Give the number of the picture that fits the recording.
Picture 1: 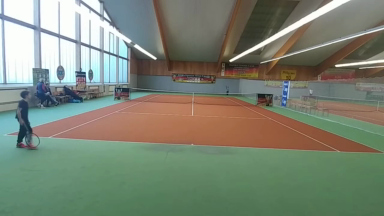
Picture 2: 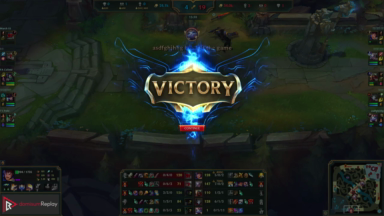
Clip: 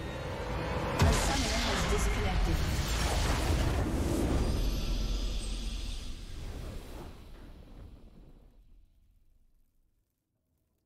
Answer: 2